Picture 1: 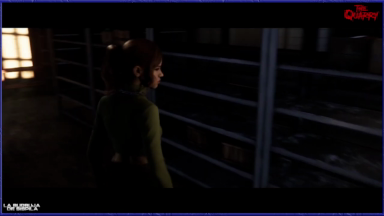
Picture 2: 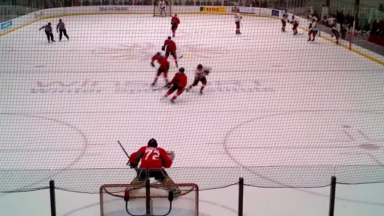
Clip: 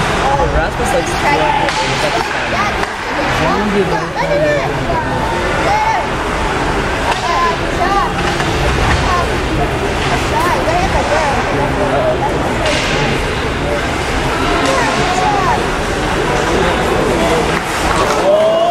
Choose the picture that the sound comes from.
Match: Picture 2